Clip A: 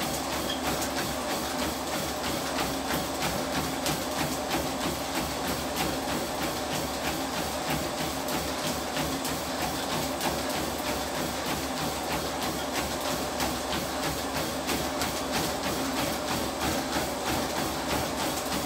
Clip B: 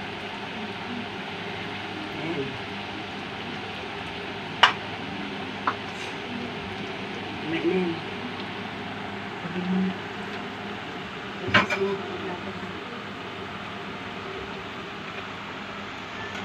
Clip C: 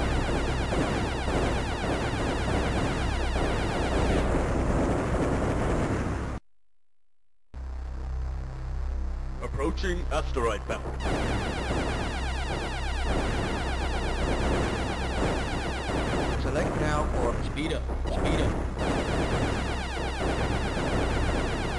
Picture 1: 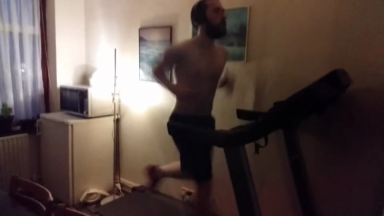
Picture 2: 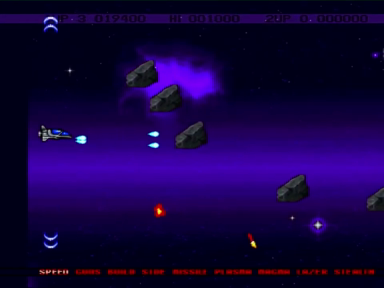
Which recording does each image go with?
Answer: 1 A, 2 C